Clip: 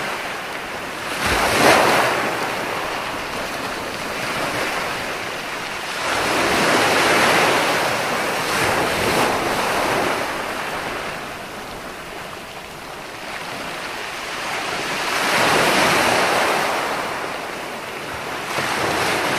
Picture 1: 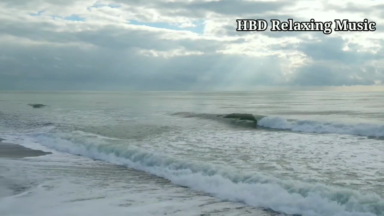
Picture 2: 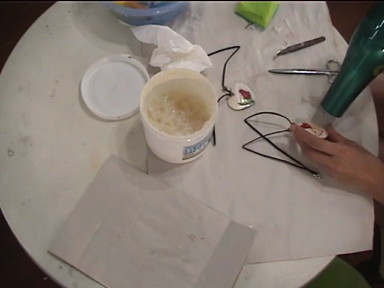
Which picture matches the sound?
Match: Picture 1